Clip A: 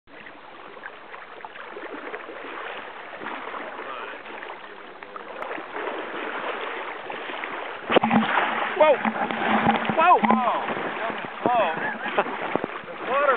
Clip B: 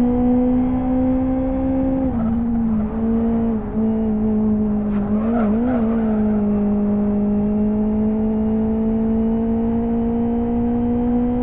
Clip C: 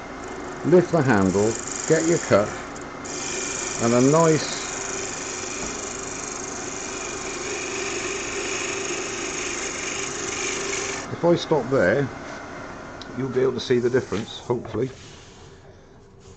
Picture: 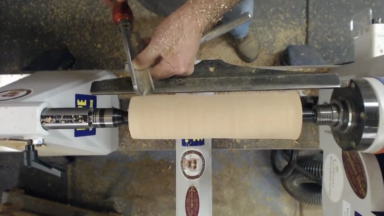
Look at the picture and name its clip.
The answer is C